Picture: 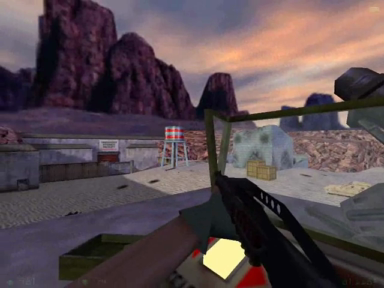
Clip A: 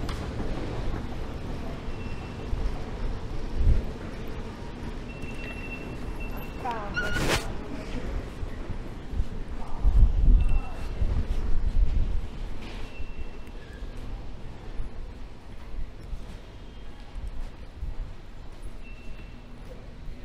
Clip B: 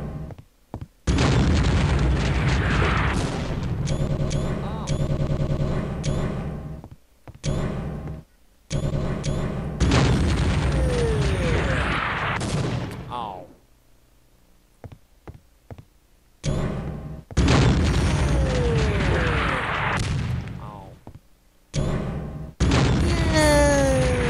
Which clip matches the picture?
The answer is B